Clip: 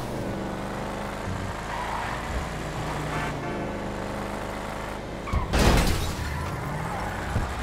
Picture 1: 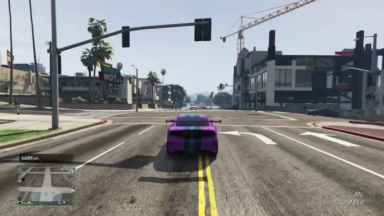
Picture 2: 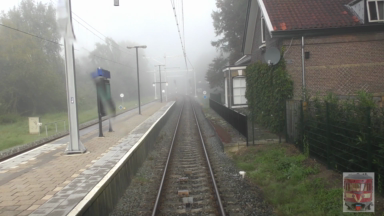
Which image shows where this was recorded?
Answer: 1